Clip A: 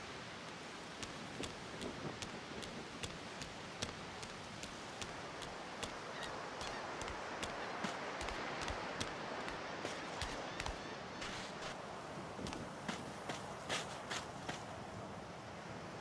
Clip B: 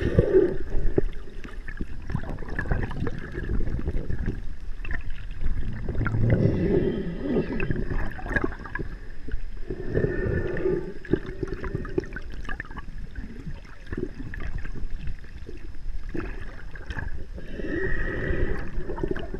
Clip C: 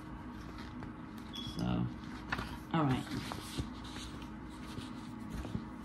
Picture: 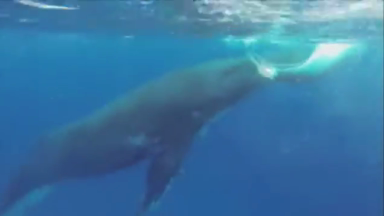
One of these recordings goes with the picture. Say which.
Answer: B